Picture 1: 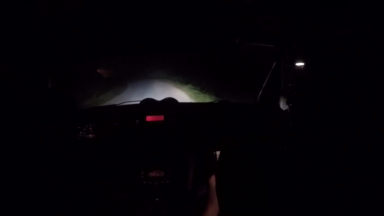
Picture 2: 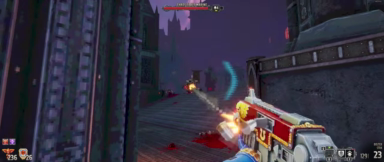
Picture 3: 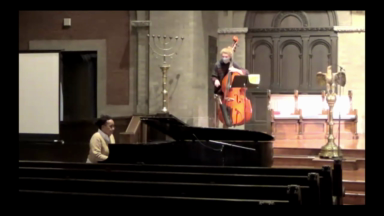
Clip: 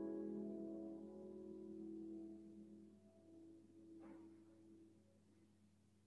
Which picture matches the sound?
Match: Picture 3